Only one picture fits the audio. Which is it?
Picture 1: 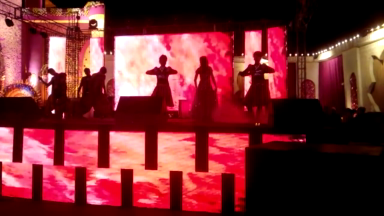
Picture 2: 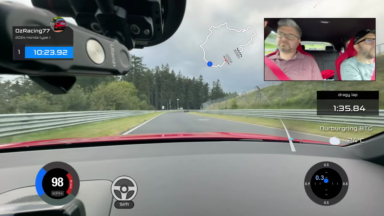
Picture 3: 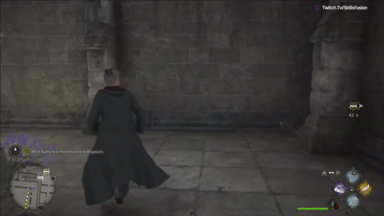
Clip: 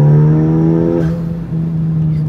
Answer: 2